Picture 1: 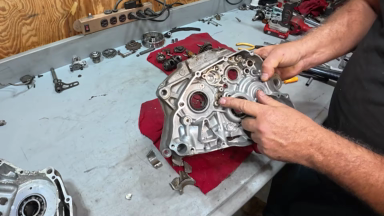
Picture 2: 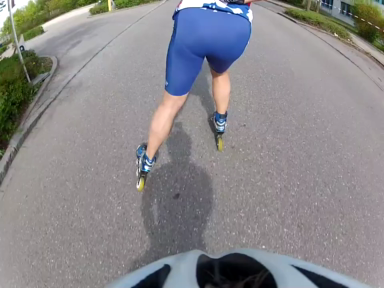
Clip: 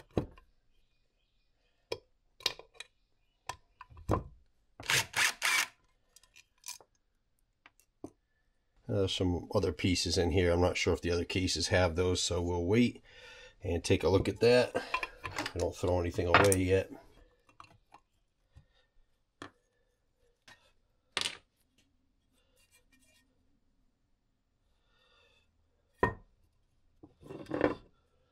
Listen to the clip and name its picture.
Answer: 1